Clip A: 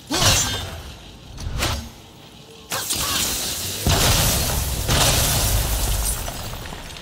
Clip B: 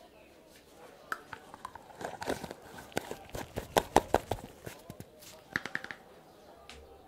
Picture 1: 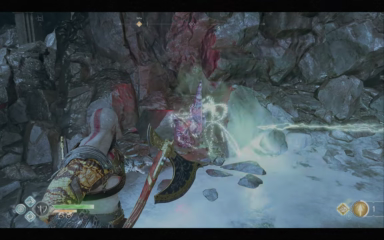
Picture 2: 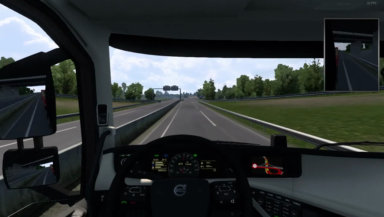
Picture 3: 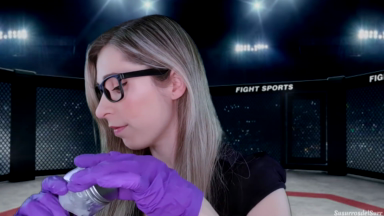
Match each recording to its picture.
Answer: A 1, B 3